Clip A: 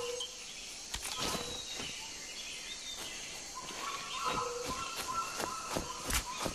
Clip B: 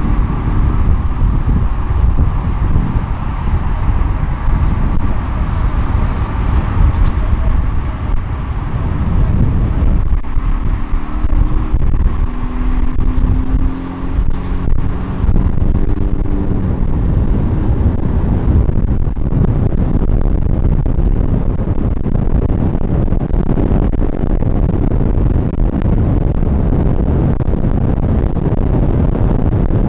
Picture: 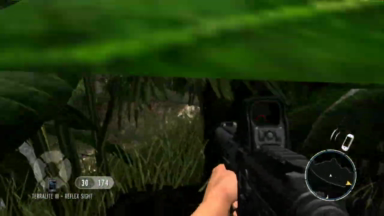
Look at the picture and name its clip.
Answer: A